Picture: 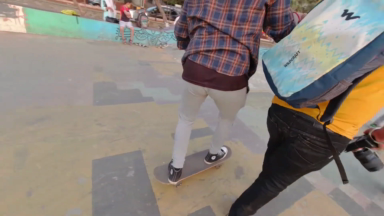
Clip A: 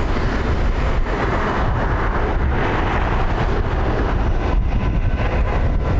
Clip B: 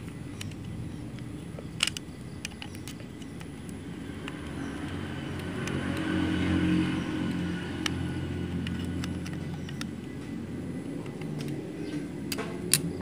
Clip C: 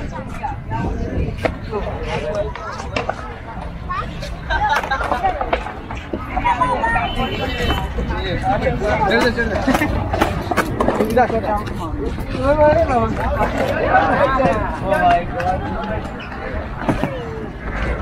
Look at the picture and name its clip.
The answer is C